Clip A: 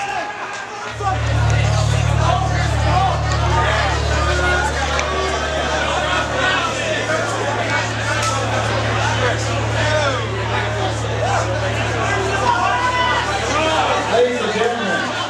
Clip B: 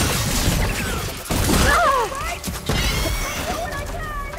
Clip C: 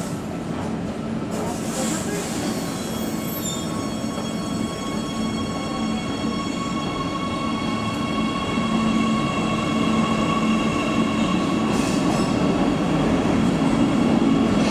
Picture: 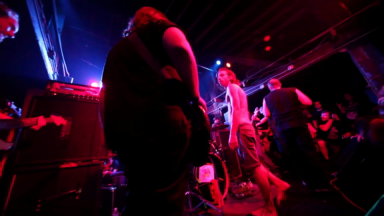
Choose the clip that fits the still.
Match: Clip A